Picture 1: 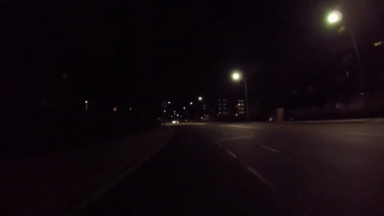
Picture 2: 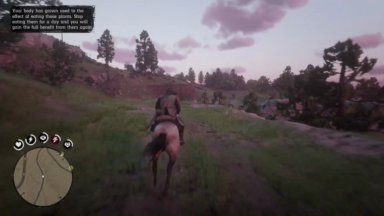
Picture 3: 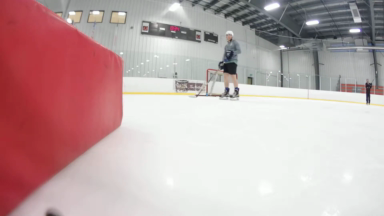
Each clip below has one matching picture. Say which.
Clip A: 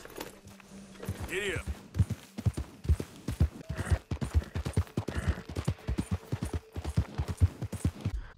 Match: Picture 2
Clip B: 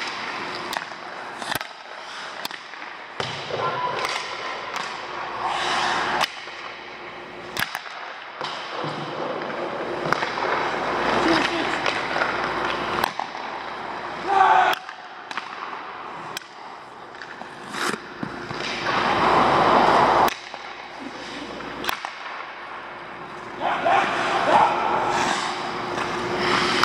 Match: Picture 3